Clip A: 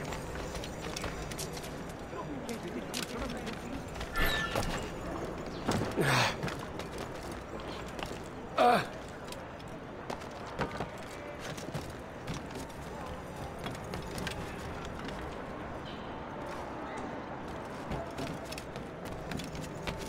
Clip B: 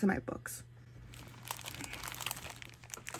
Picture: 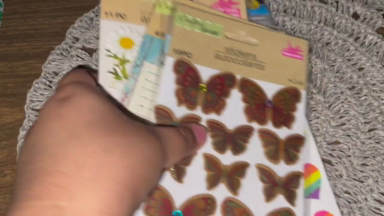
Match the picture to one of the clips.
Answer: B